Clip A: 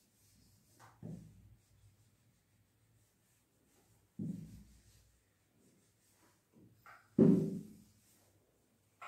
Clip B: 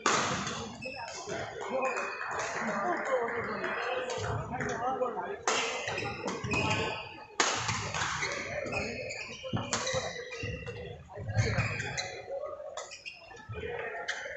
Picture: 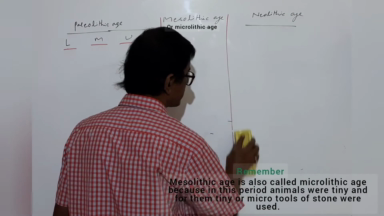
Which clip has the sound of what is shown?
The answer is A